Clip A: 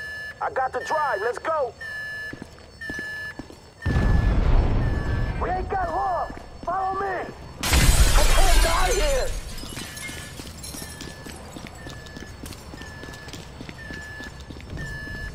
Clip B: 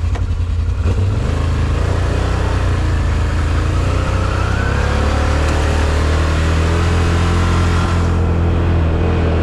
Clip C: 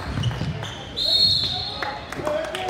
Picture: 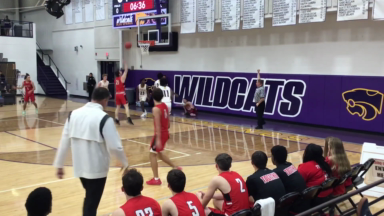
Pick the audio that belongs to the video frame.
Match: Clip C